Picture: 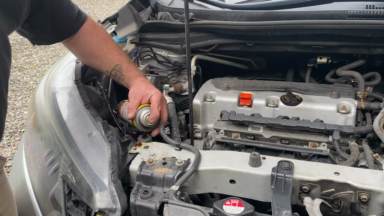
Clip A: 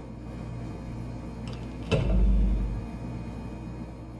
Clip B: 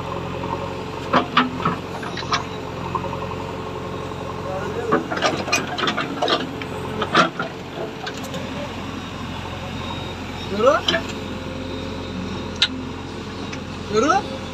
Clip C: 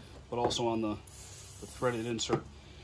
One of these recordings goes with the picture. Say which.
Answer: C